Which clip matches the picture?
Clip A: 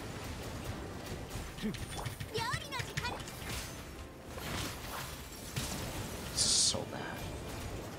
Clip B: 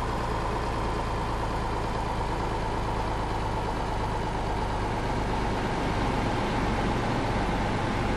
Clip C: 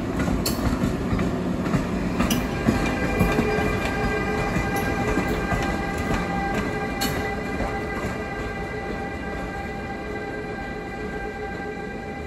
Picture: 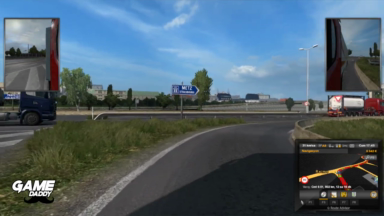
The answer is B